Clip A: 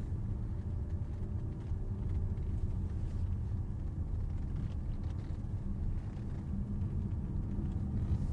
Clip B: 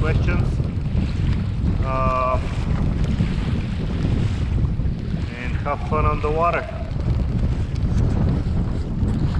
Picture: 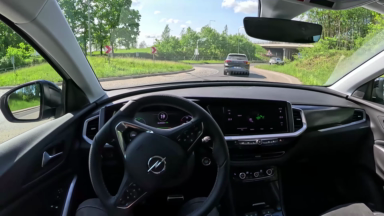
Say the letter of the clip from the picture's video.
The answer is A